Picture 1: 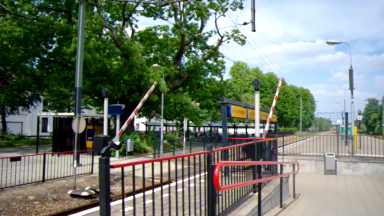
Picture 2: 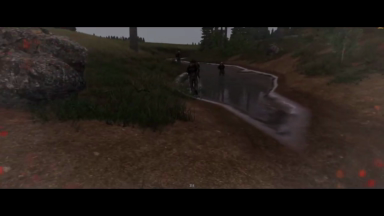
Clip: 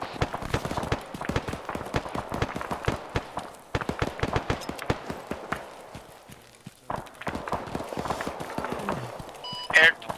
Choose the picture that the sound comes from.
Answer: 2